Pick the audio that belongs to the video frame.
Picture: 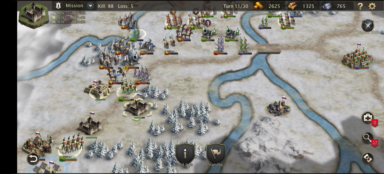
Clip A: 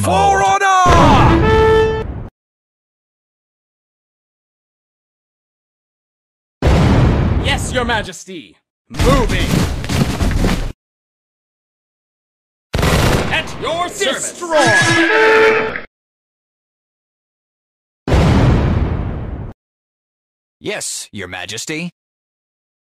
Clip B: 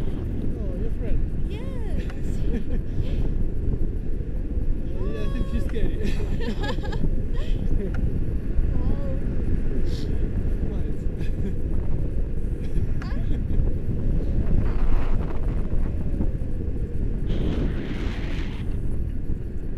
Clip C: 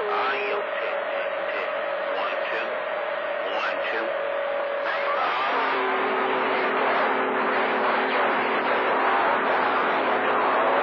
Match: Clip A